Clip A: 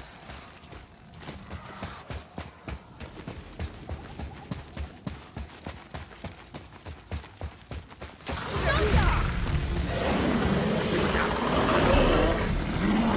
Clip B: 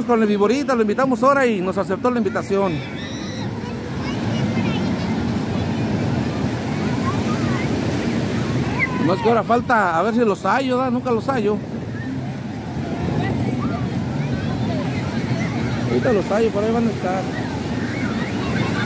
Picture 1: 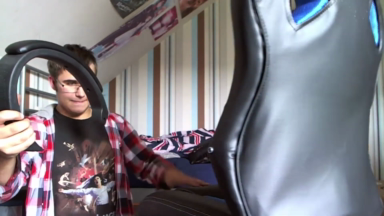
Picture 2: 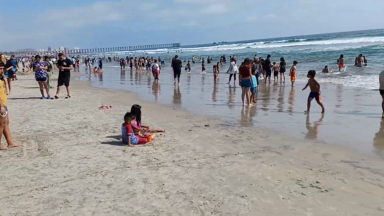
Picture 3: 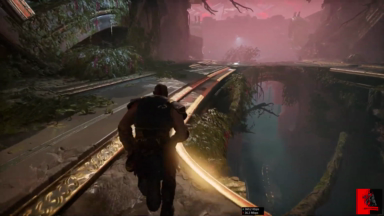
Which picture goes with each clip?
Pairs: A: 3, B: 2